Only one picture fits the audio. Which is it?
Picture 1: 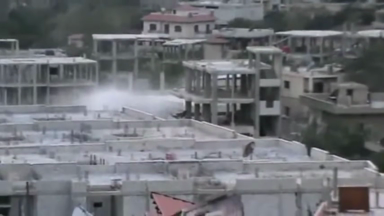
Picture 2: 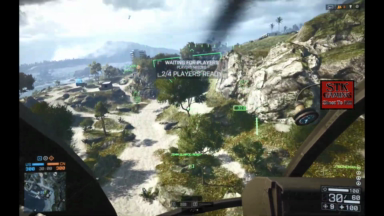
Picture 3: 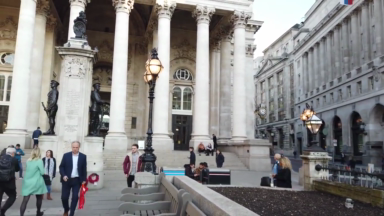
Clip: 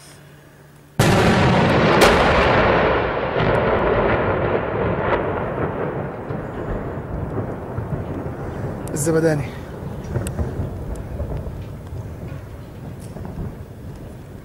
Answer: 1